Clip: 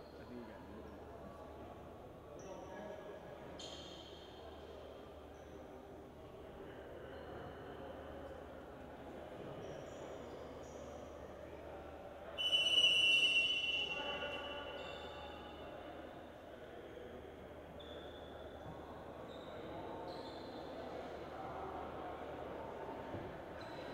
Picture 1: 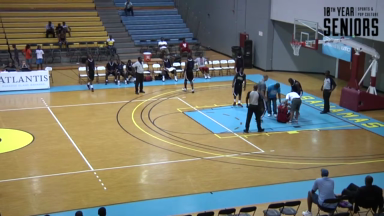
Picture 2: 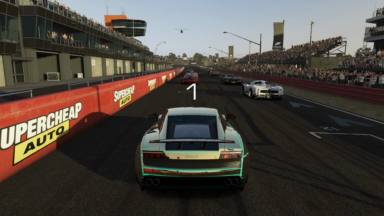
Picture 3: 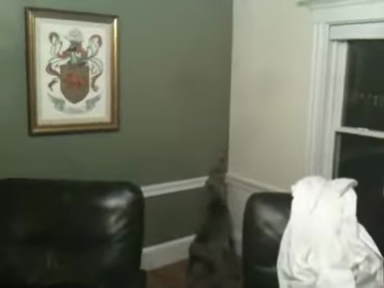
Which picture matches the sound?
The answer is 1